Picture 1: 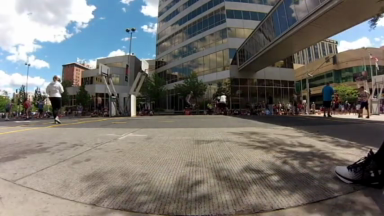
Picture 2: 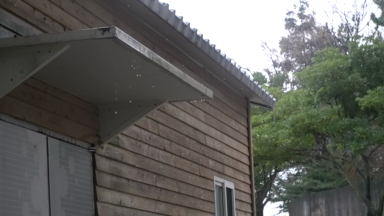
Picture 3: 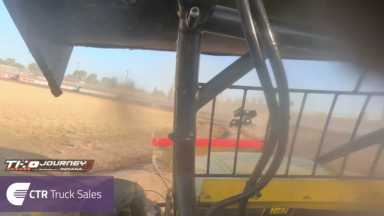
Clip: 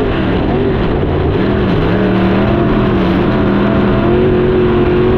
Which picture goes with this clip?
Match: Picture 3